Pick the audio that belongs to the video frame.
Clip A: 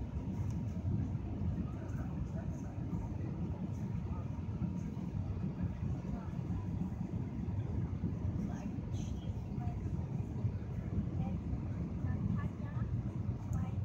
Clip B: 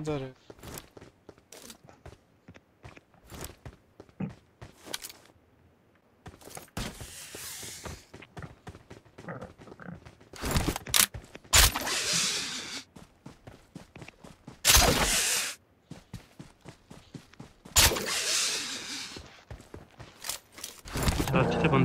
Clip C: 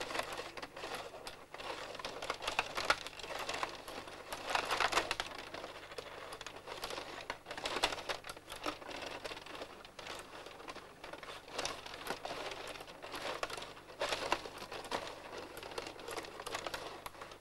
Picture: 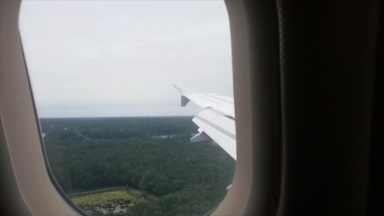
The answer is A